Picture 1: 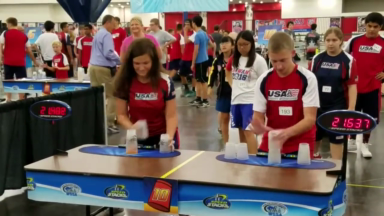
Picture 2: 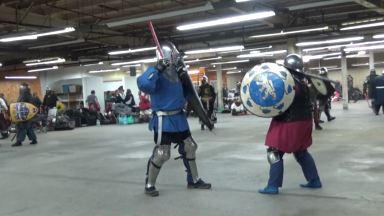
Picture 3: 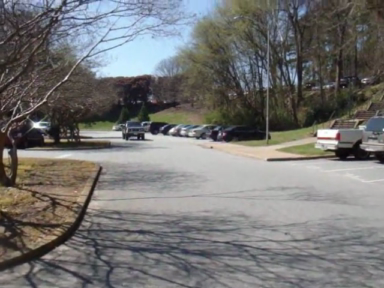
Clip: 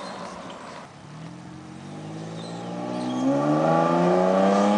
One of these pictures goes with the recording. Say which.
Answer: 3